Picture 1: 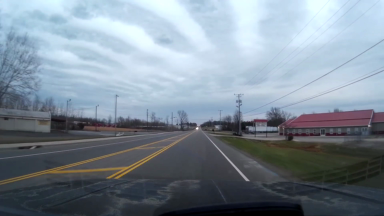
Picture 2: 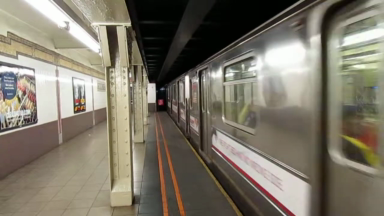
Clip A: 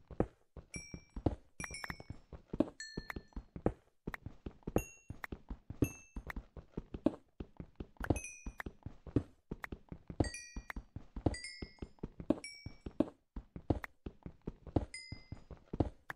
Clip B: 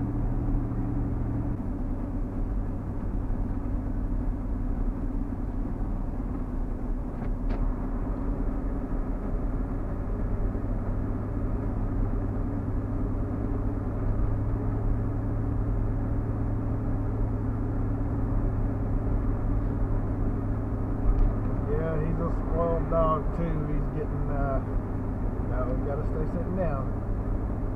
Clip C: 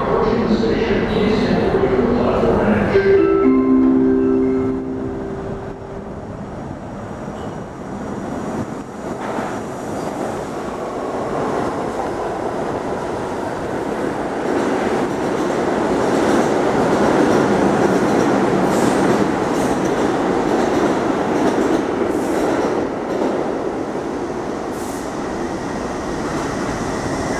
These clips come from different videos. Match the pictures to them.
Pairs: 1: B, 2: C